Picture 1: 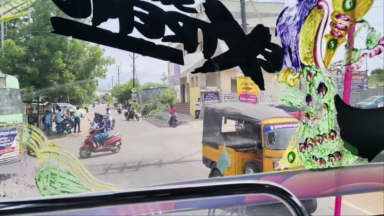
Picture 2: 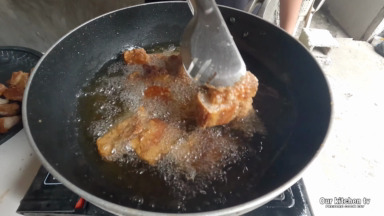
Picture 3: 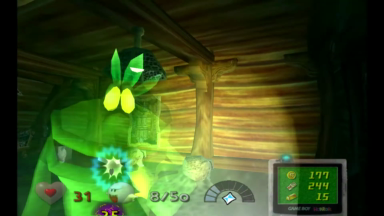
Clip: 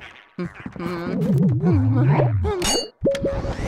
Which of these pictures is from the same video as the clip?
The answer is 3